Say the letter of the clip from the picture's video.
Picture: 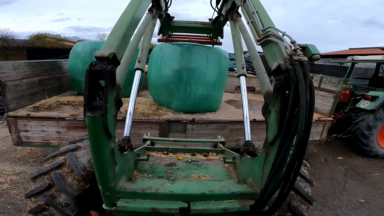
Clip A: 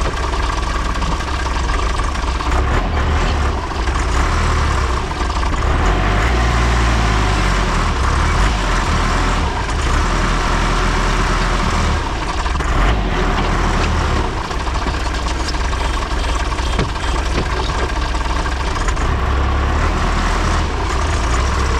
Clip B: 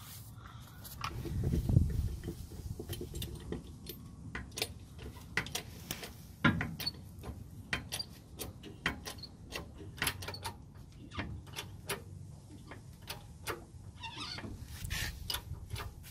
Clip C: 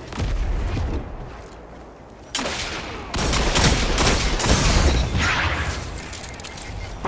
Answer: A